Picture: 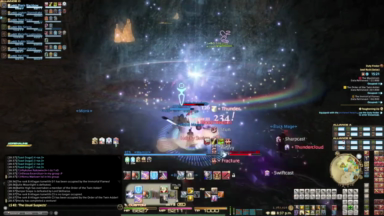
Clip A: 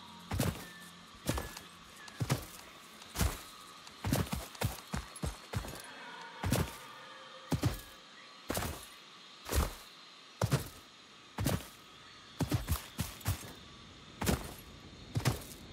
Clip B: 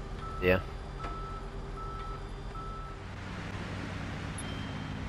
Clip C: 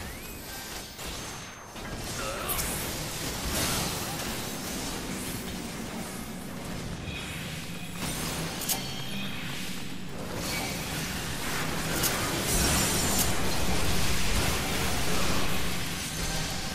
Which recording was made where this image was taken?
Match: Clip C